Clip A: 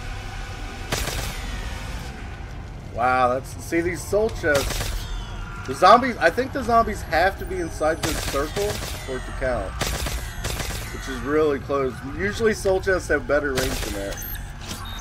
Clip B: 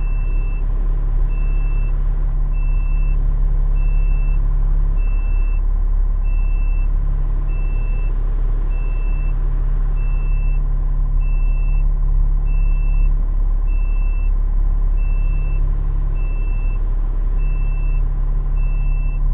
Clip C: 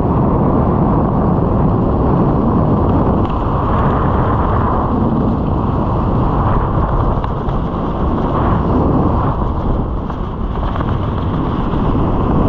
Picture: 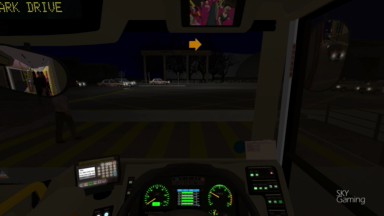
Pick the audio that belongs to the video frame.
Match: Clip B